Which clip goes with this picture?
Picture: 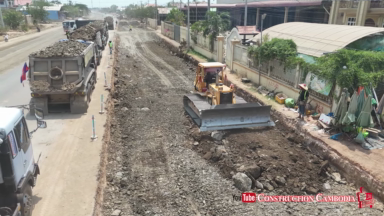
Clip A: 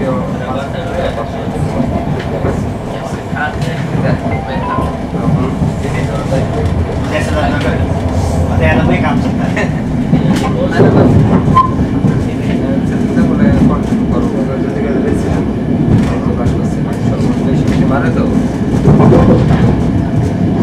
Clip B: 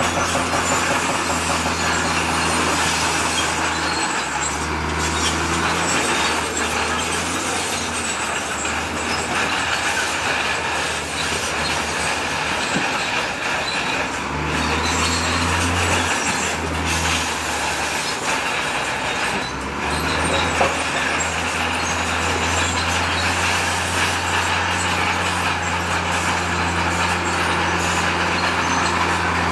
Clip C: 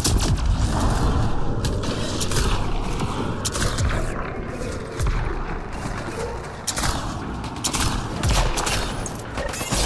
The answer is B